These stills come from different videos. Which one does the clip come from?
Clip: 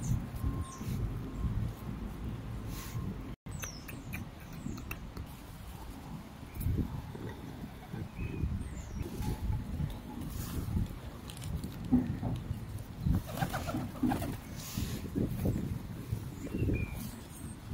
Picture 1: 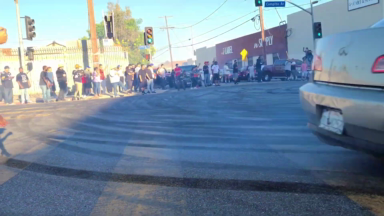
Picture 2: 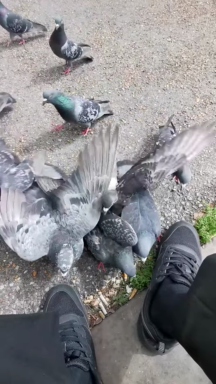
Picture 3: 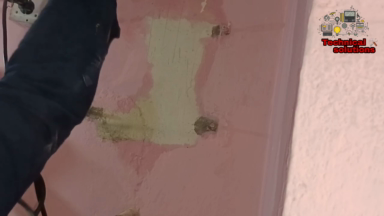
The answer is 2